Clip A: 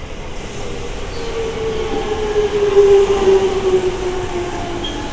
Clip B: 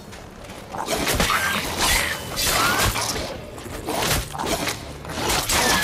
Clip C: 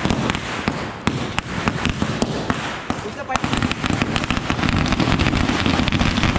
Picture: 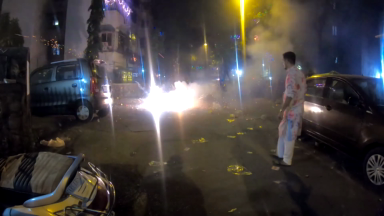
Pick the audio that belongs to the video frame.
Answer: C